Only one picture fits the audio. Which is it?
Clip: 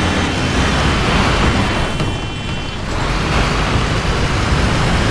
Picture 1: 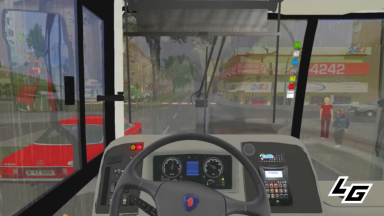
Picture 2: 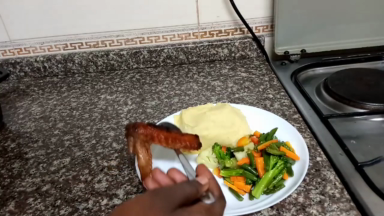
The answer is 1